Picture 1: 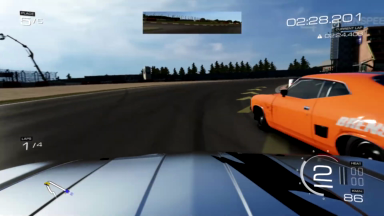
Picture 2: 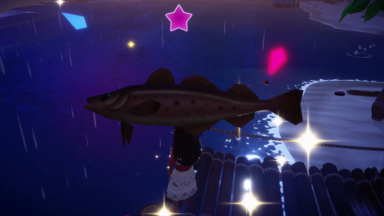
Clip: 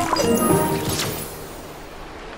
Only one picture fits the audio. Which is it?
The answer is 2